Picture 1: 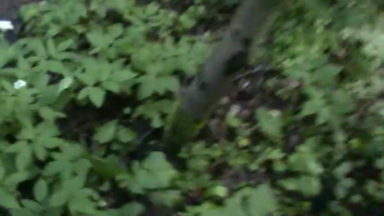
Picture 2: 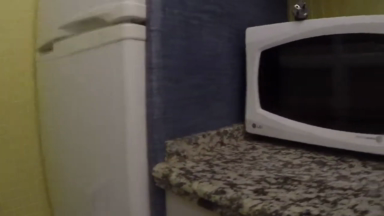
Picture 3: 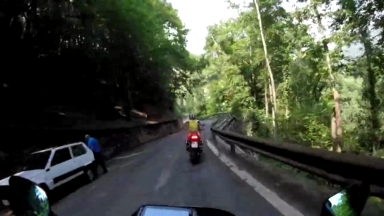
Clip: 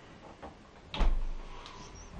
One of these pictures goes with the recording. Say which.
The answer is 2